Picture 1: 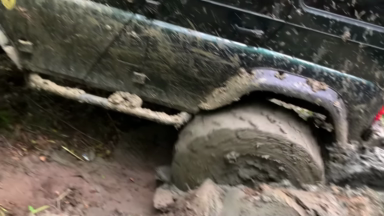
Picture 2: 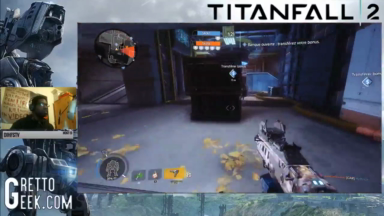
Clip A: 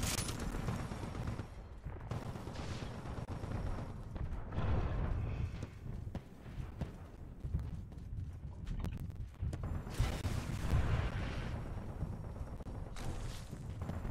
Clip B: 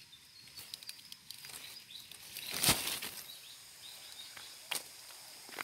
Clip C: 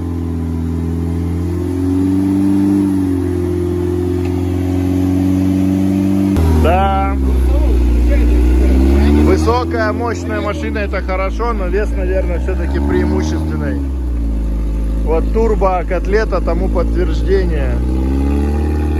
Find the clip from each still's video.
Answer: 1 C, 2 A